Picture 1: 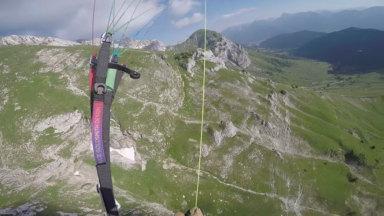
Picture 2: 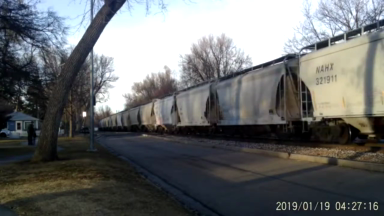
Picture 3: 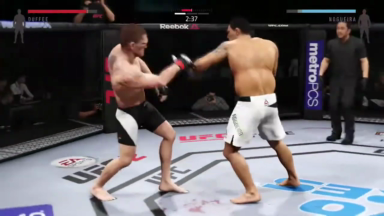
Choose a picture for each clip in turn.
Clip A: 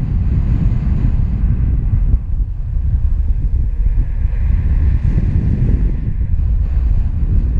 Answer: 1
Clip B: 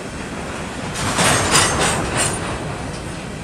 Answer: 2